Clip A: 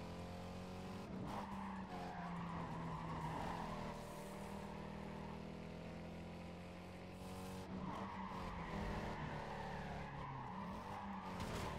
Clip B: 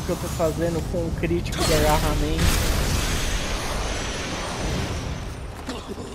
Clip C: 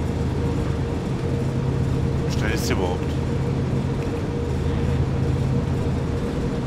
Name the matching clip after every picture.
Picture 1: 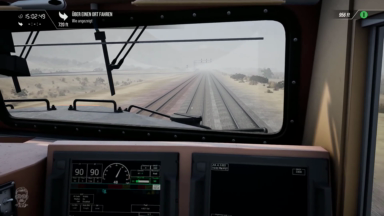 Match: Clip C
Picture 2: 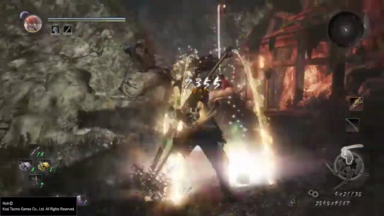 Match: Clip B